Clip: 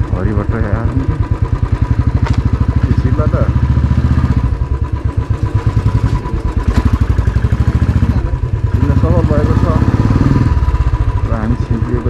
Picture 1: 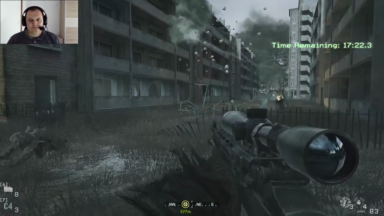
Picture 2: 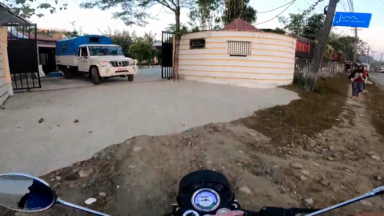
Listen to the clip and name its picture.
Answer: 2